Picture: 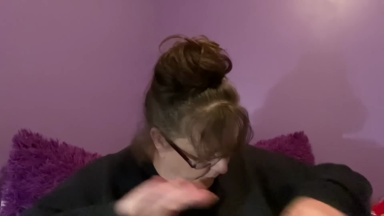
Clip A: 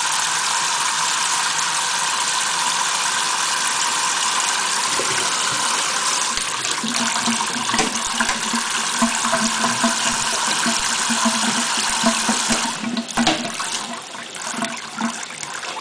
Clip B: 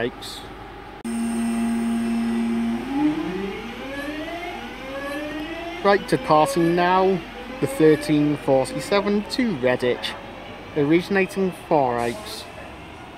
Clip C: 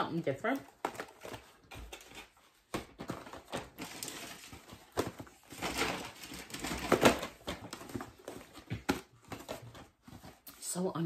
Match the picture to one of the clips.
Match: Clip C